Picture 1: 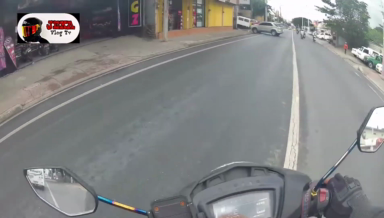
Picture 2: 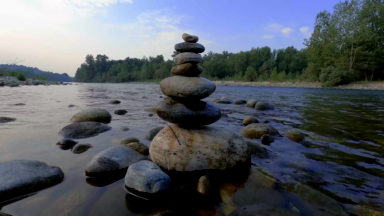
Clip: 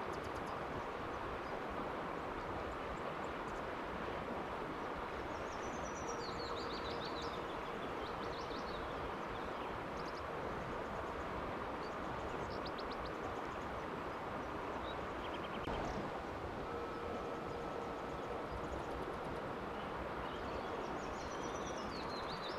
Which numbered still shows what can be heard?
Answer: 2